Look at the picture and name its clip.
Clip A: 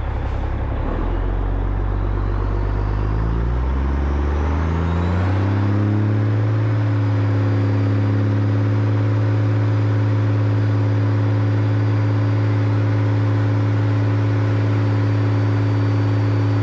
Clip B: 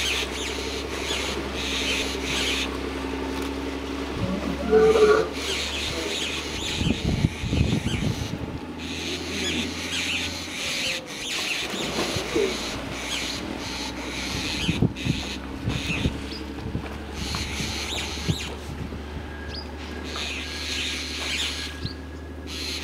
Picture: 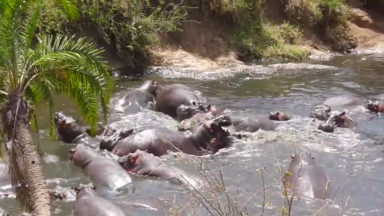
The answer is B